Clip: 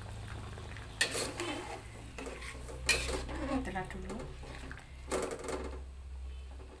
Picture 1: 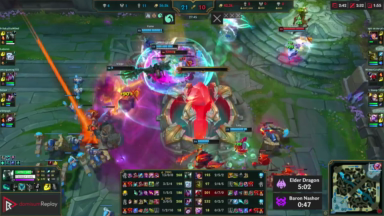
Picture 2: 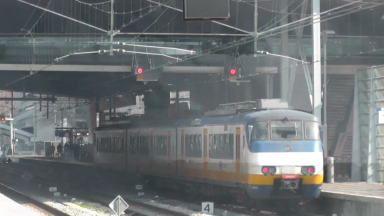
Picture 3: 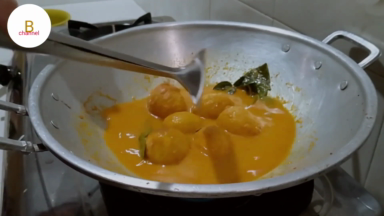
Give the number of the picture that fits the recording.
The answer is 3